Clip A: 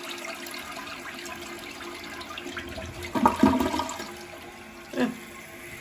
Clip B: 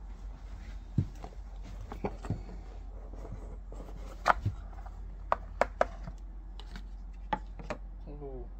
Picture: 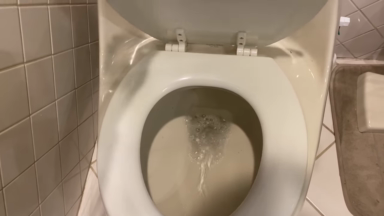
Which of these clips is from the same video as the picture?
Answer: A